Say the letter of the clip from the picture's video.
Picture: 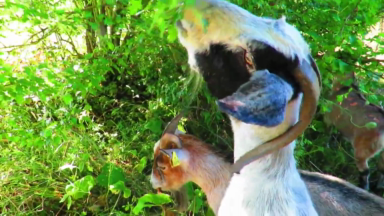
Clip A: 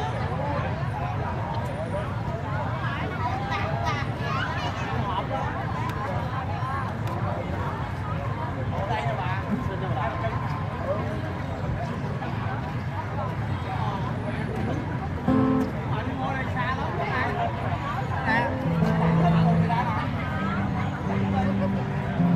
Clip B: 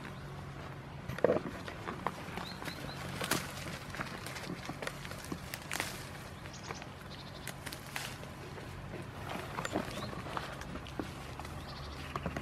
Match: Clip B